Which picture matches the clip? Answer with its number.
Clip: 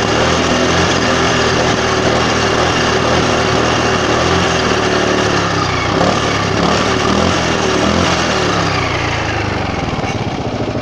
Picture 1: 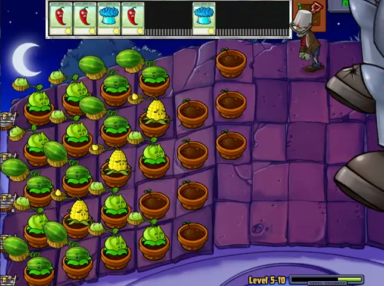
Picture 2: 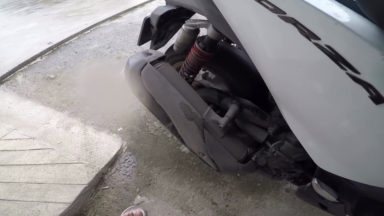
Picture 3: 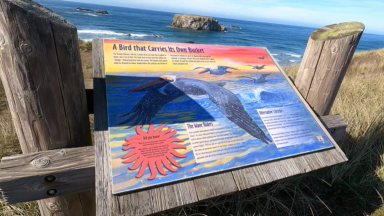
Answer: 2